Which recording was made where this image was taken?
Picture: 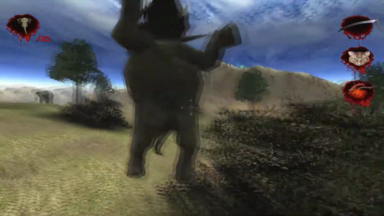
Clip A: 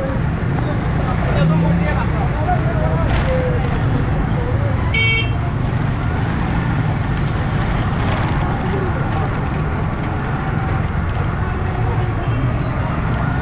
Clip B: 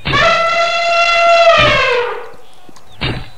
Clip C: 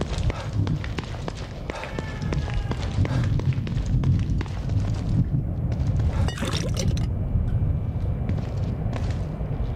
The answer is B